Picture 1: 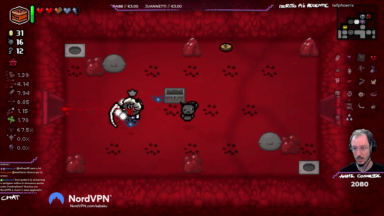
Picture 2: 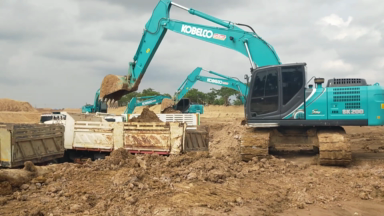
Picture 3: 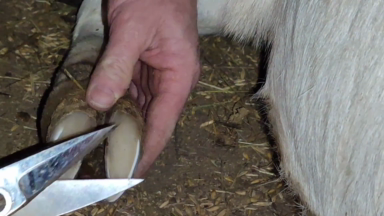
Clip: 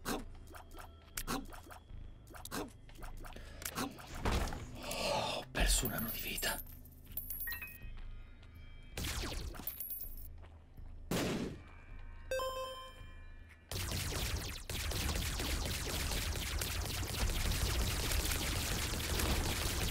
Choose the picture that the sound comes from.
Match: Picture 1